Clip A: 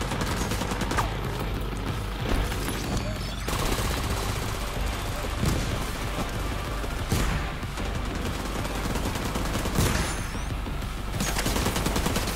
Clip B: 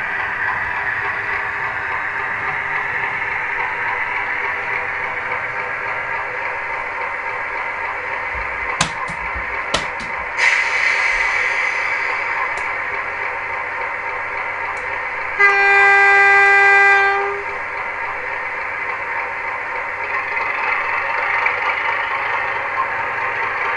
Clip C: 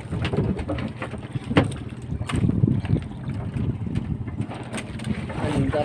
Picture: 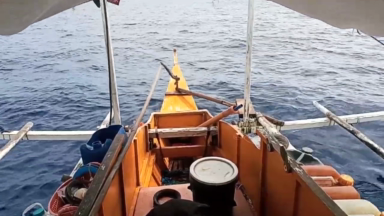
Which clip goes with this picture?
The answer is C